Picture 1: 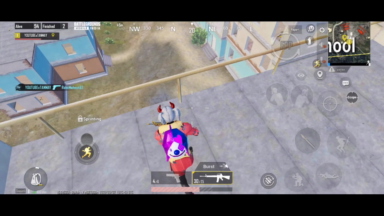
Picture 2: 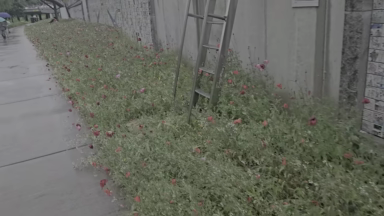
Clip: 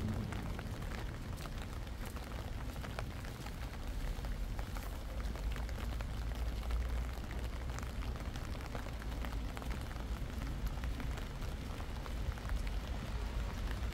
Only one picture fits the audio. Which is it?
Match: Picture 2